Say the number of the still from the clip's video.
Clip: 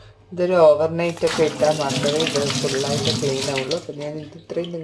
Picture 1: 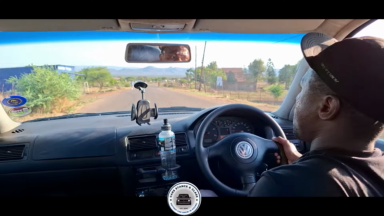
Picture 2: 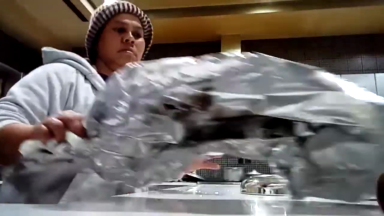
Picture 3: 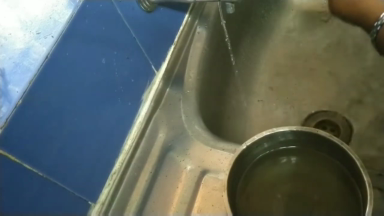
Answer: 3